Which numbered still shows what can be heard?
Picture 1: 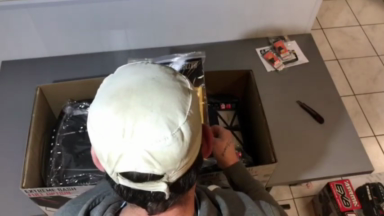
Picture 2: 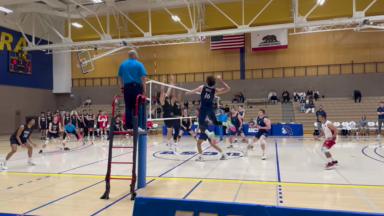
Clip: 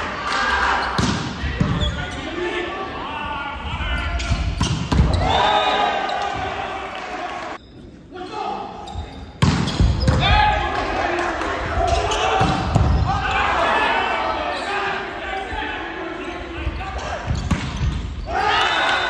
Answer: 2